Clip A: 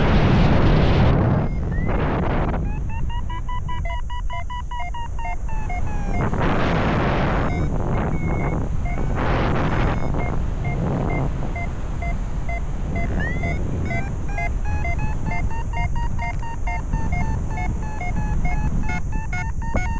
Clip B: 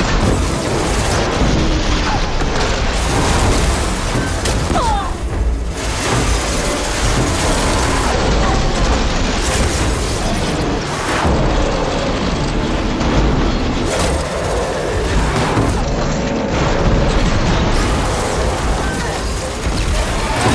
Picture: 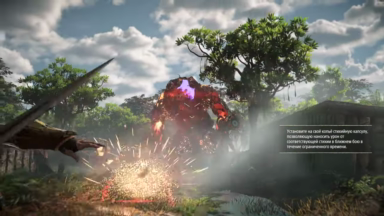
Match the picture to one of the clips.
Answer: B